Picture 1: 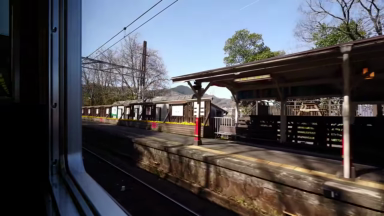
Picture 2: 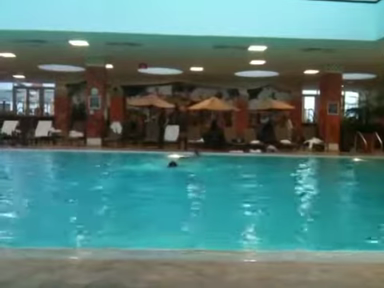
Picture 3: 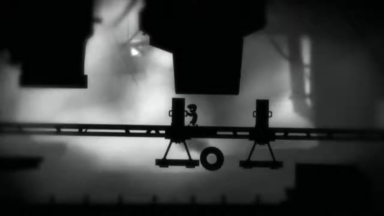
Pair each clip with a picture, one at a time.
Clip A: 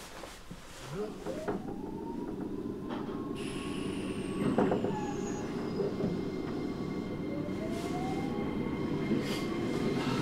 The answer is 1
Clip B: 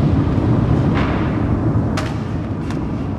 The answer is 3